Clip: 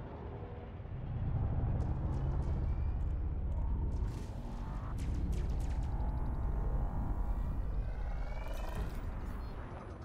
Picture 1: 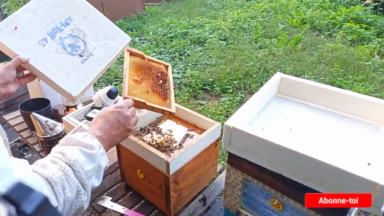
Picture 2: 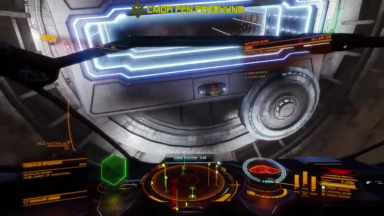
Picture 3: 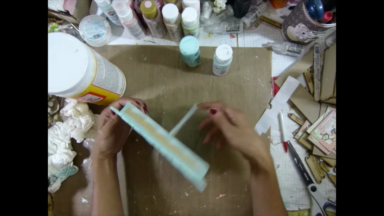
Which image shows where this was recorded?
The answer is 2